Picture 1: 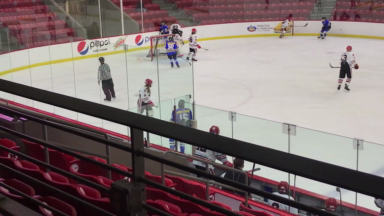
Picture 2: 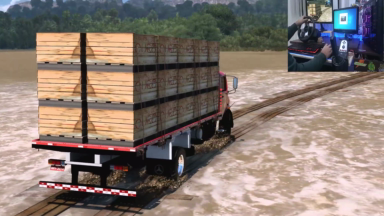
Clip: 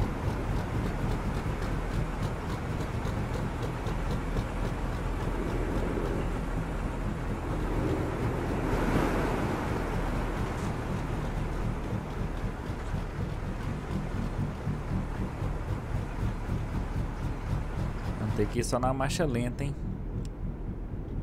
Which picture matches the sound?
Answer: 2